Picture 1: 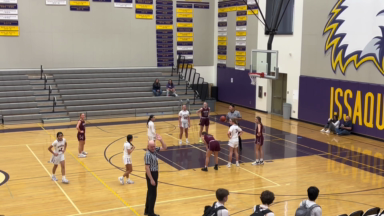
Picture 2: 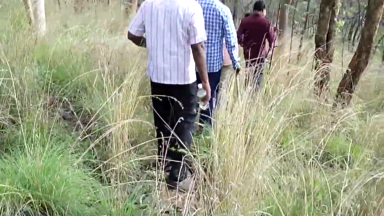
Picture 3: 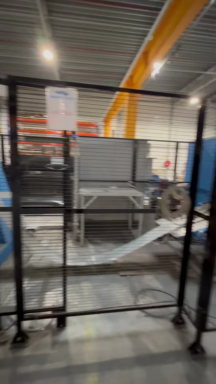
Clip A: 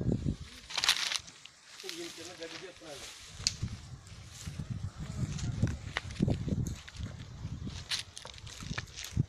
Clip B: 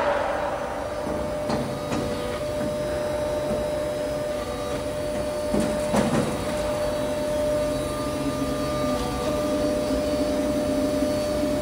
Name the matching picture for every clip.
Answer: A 2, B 3